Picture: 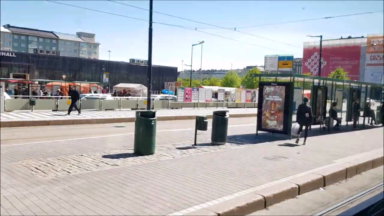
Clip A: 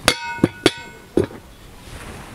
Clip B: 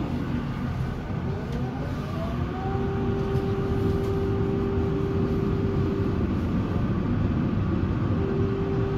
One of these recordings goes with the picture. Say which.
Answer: B